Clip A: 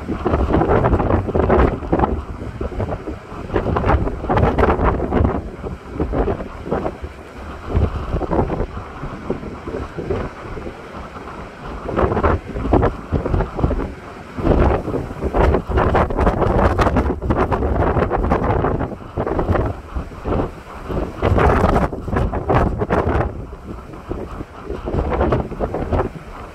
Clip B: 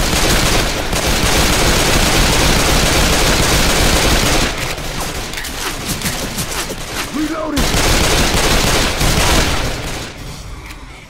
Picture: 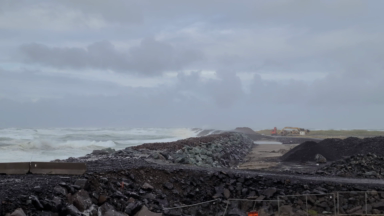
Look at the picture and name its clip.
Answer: A